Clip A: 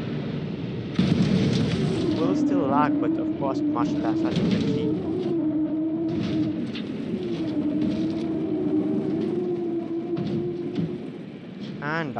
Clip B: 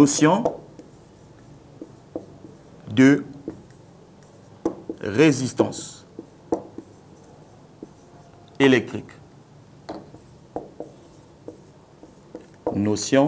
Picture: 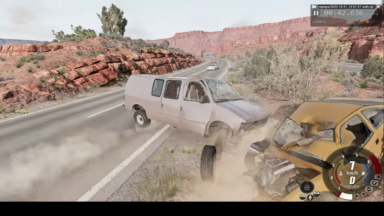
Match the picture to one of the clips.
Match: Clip A